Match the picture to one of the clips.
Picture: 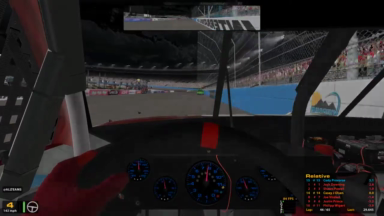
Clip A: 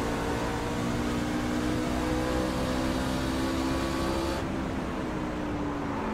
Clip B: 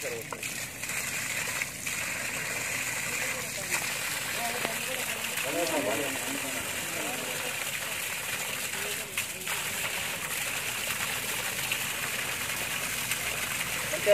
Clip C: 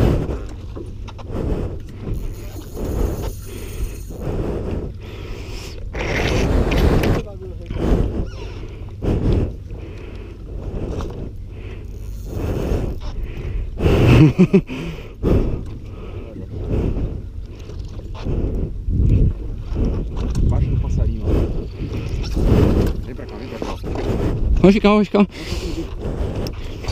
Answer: A